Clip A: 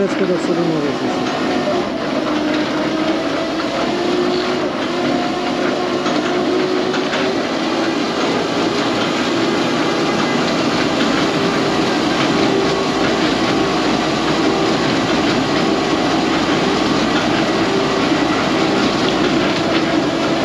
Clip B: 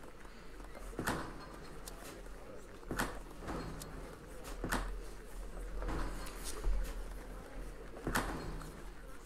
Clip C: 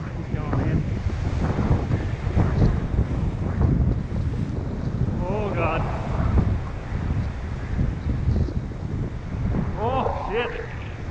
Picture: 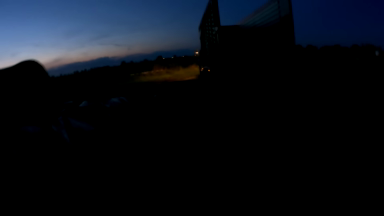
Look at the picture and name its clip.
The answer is A